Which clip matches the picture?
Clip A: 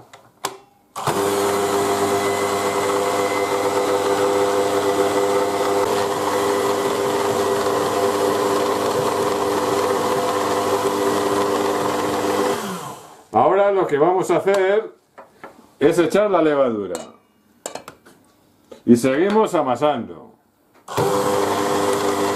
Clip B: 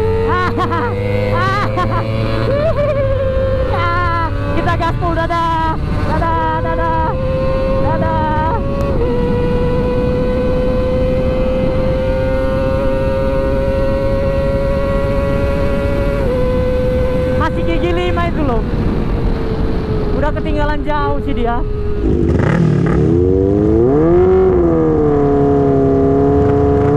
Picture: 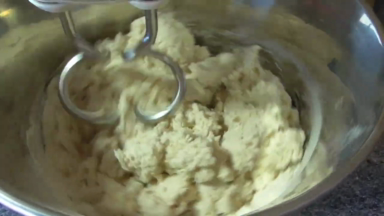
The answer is A